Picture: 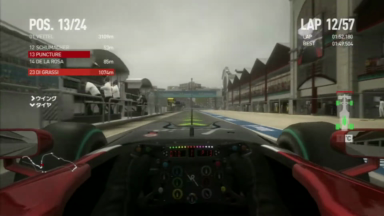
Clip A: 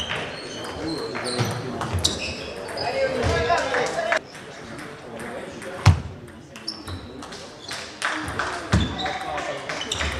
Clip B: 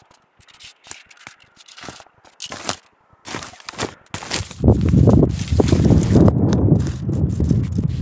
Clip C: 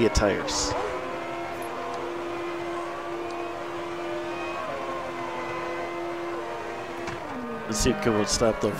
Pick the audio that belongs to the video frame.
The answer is C